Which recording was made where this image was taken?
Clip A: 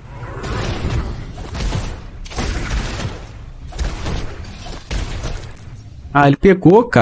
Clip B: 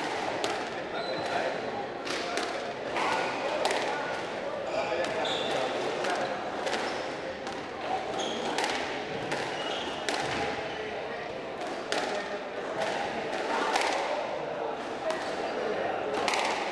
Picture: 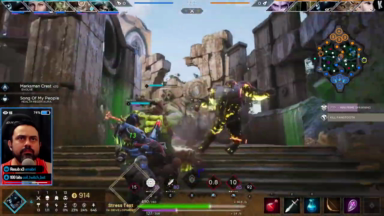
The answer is A